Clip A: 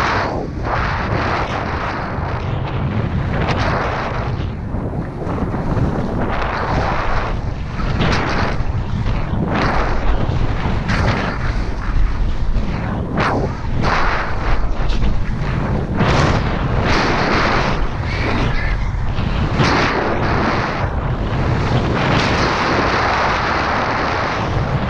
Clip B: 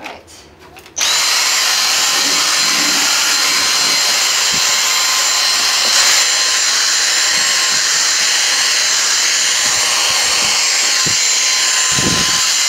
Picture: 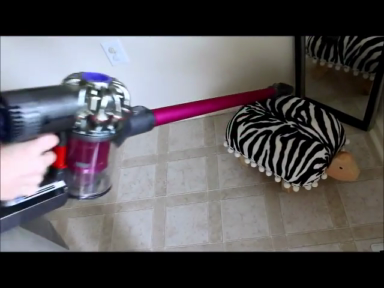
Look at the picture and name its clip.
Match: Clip B